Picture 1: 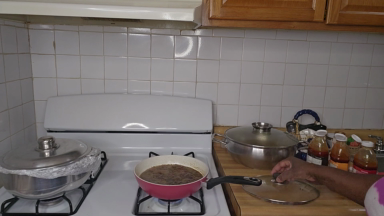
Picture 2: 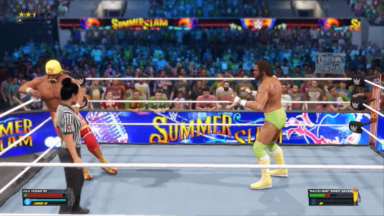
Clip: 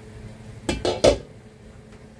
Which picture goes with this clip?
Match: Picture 1